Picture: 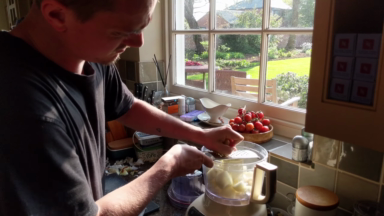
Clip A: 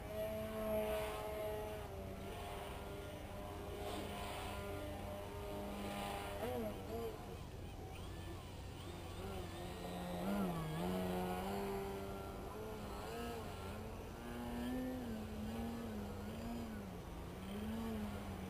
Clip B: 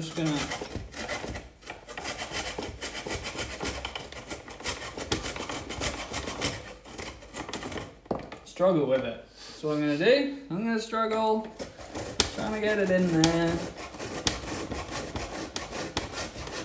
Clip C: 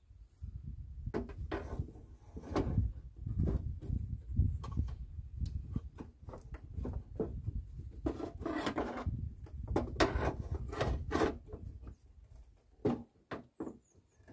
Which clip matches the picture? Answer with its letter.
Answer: B